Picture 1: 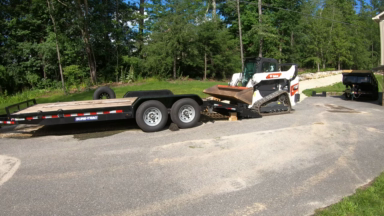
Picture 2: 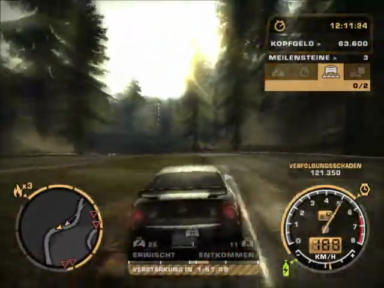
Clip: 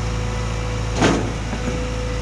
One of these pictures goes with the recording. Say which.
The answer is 1